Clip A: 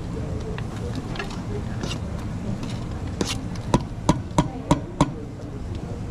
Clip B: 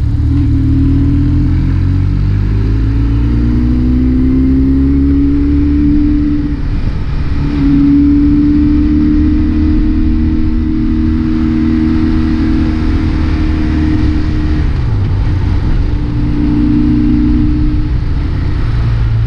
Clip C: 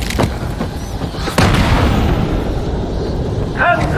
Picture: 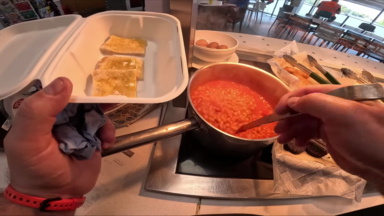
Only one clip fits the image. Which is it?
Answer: A